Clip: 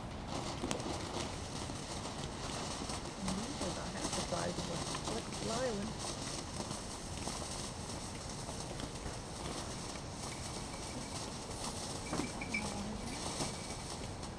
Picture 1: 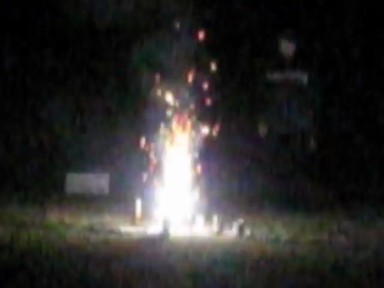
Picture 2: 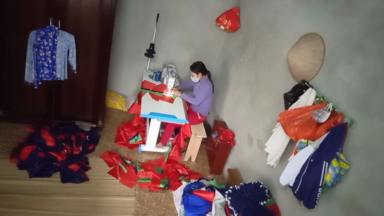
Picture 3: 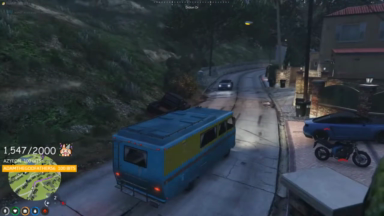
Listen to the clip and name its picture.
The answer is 1